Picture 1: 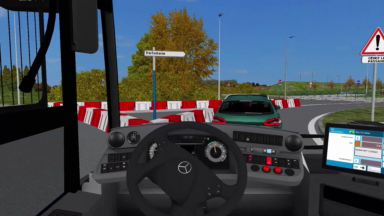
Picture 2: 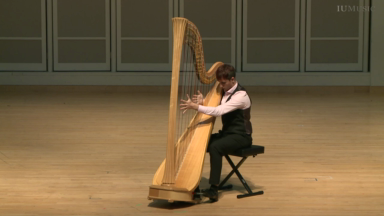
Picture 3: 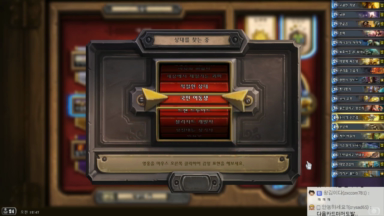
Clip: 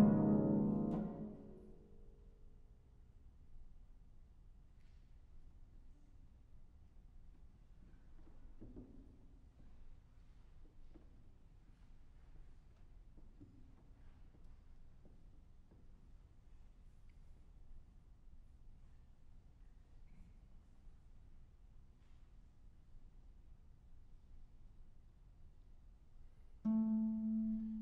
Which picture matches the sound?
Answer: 2